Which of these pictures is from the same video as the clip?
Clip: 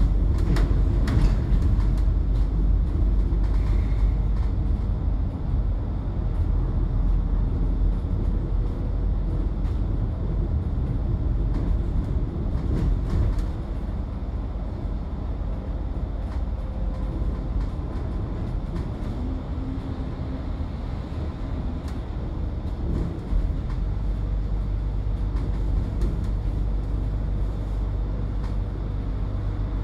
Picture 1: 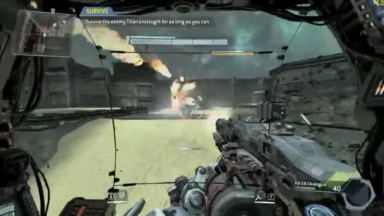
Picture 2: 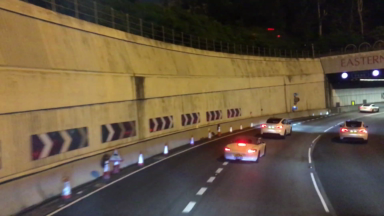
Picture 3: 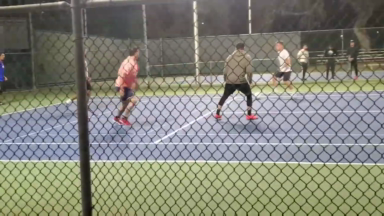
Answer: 2